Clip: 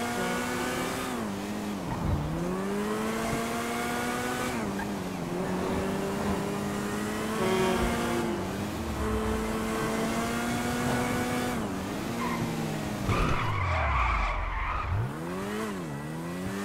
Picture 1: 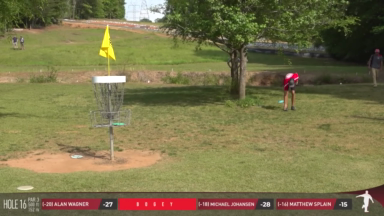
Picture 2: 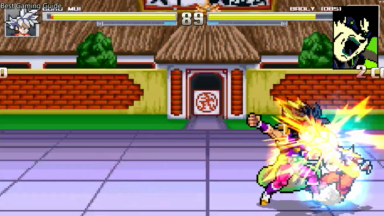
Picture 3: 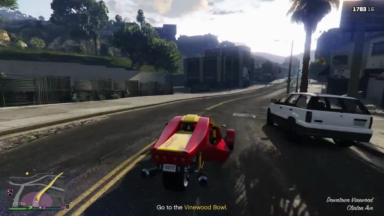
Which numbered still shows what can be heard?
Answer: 3